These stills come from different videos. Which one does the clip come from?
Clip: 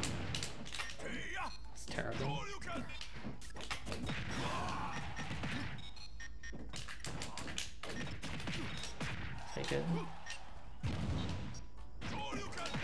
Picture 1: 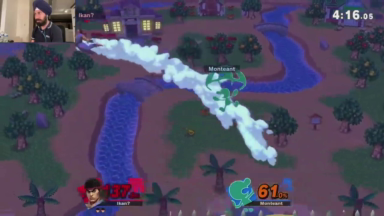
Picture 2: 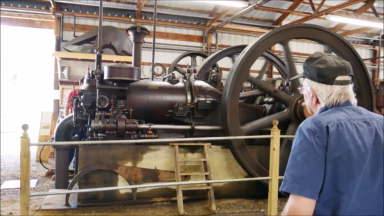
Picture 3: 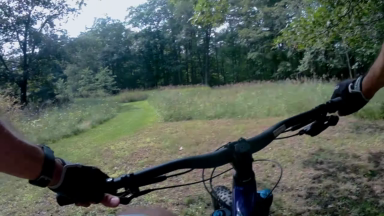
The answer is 1